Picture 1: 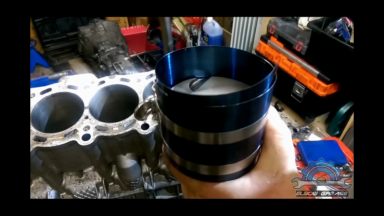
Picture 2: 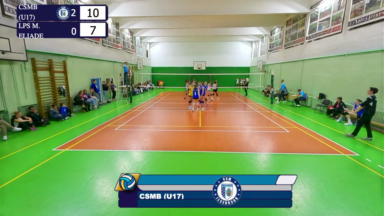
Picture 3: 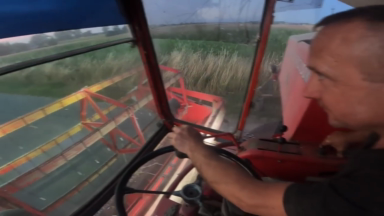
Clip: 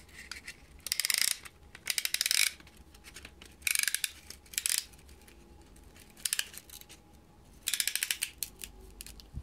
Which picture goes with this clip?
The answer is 1